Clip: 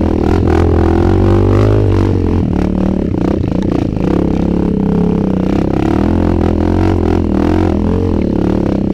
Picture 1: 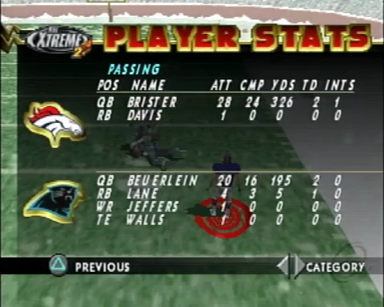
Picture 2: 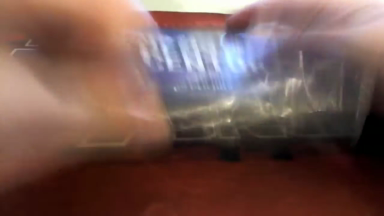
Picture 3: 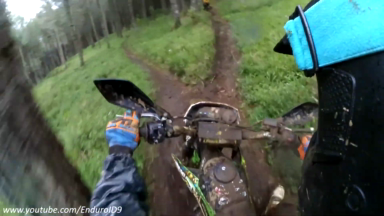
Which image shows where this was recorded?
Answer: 3